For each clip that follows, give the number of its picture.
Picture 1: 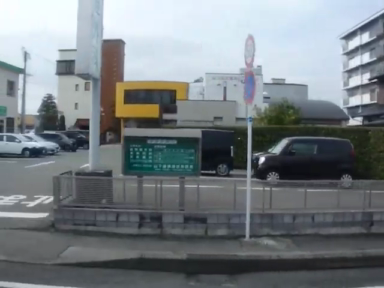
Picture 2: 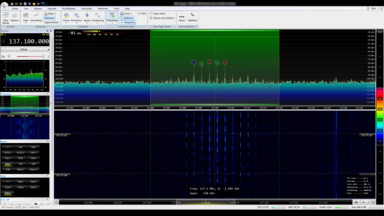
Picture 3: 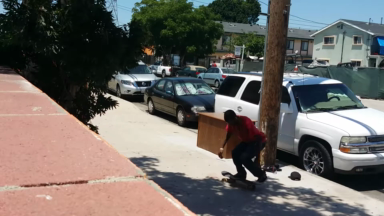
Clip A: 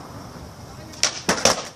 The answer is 3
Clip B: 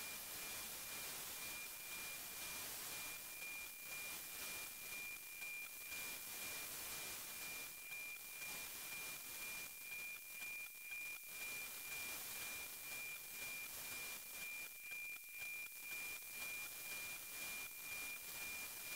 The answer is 2